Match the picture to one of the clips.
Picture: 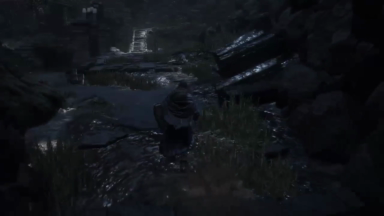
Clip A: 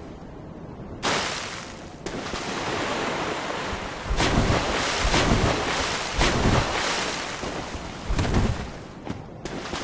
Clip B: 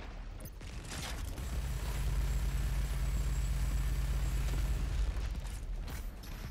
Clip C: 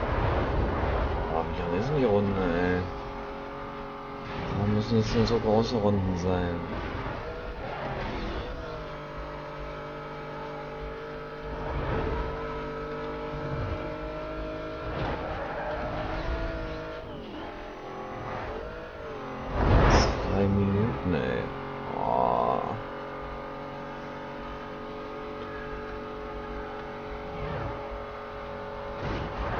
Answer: A